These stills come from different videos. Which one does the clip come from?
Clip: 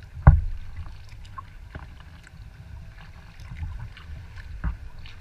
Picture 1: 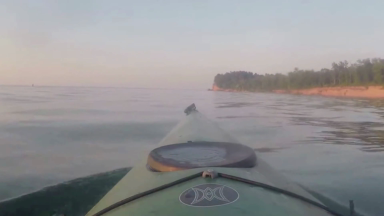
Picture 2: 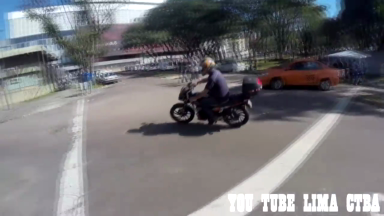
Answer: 1